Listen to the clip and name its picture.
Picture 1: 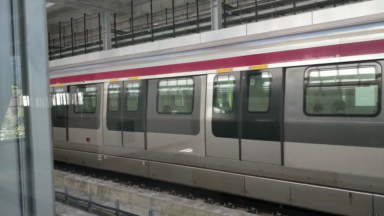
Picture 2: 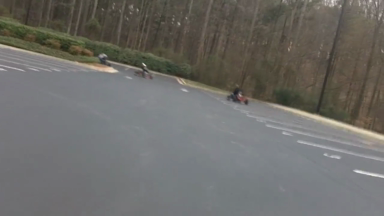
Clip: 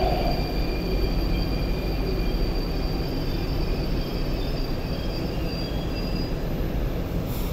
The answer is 1